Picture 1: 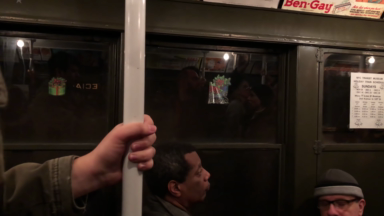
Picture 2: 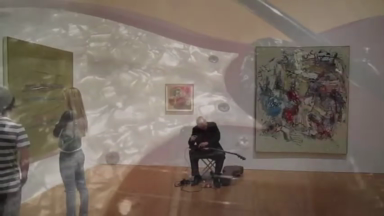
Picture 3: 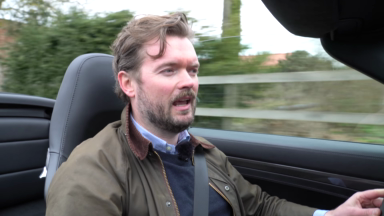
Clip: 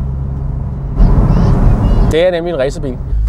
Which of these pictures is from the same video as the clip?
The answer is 3